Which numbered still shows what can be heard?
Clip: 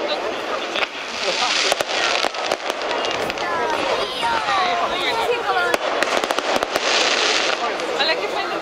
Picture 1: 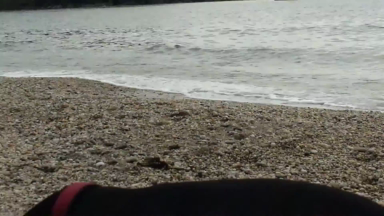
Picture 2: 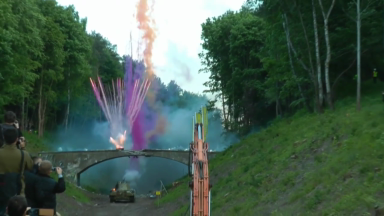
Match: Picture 2